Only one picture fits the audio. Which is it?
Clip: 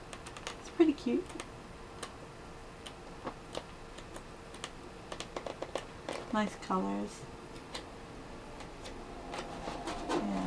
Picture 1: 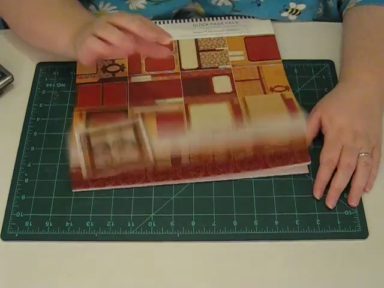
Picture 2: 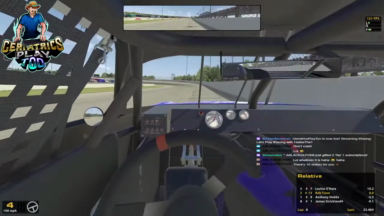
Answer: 1